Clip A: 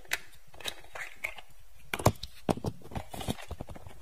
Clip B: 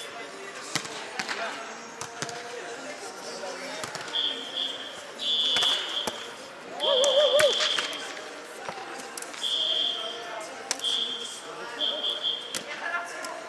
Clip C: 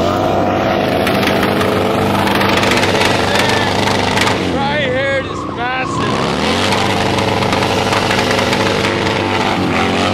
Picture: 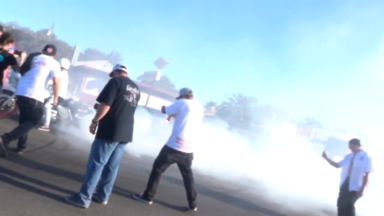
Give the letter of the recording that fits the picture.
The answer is C